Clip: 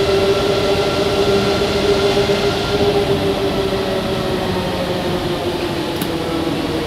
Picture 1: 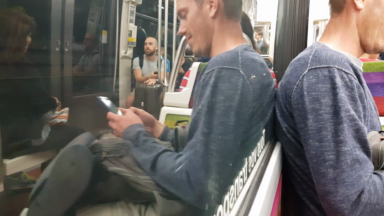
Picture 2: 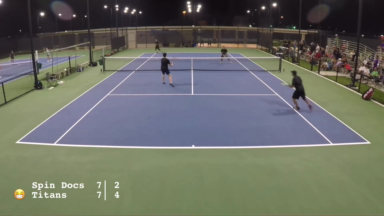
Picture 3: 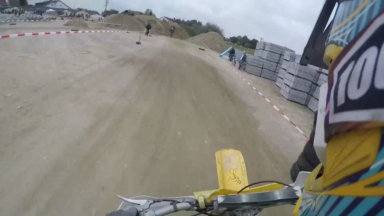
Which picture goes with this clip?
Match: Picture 1